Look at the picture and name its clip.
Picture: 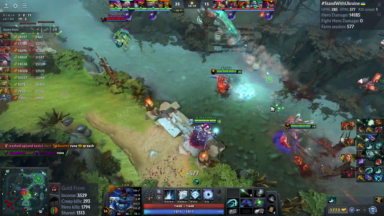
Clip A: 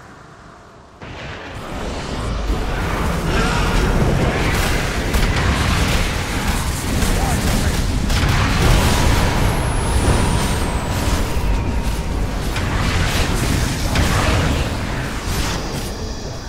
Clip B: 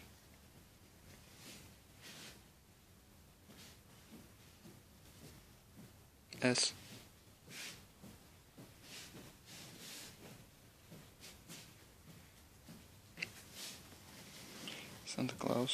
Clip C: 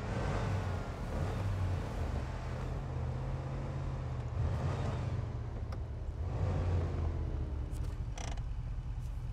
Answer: A